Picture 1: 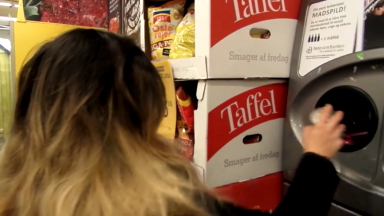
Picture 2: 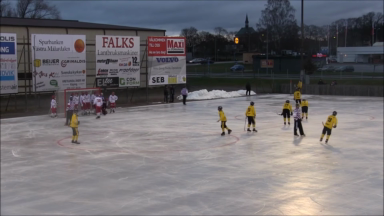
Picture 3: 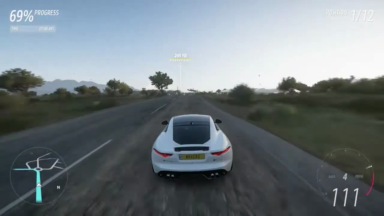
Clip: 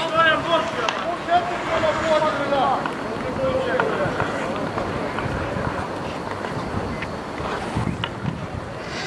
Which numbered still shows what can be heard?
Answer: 2